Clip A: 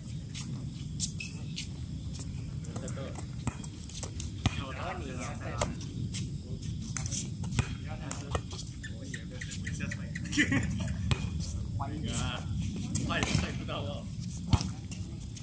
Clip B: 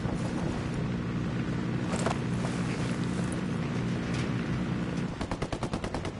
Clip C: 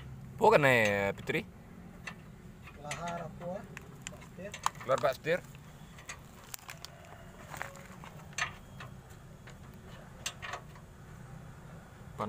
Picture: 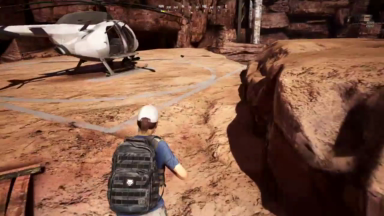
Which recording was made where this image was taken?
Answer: B